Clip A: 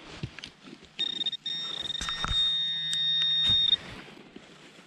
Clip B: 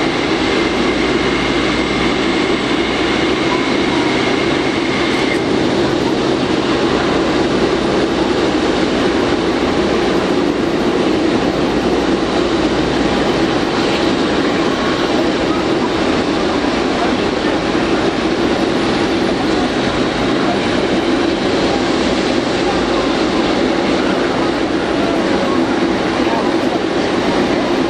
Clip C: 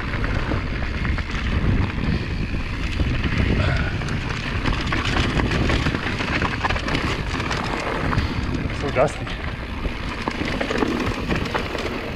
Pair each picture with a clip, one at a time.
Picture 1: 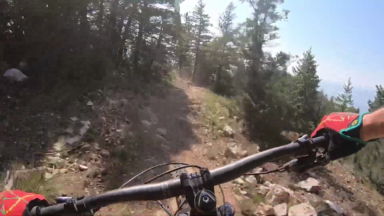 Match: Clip C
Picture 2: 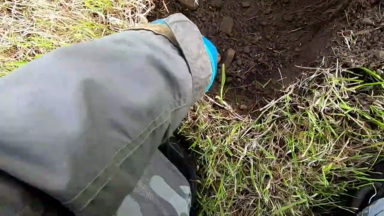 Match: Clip A